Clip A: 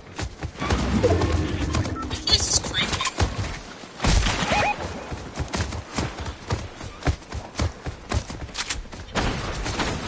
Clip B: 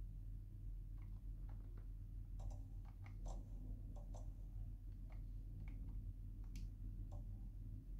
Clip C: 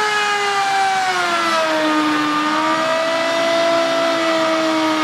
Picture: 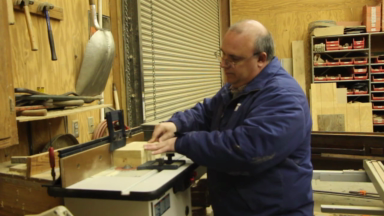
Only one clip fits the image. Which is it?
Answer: C